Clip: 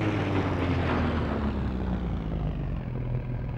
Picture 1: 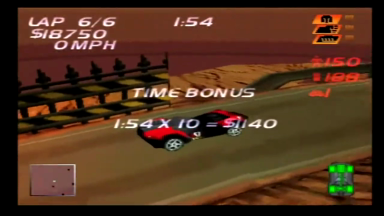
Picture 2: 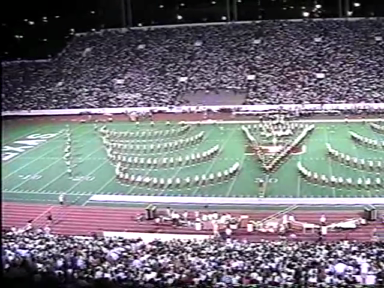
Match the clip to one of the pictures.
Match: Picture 1